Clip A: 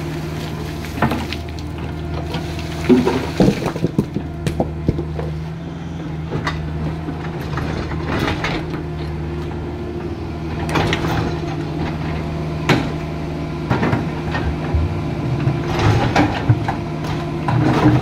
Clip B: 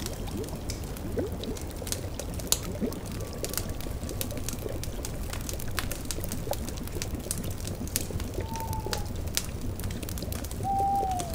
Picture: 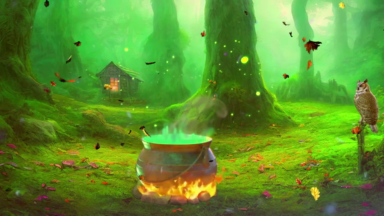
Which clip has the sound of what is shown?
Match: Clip B